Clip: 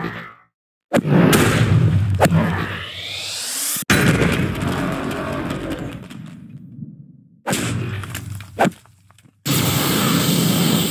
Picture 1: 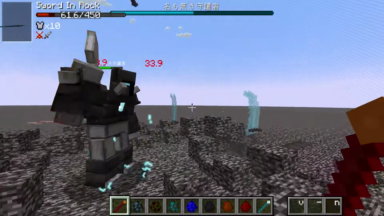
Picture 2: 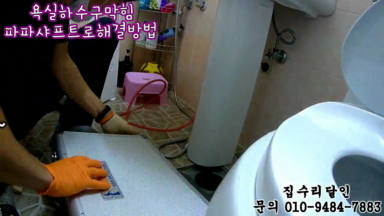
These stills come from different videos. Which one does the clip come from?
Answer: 1